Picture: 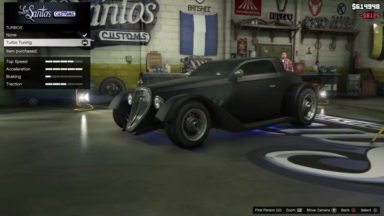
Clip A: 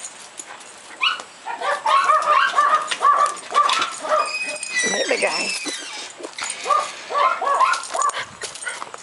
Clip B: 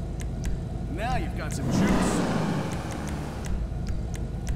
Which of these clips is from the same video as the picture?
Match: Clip B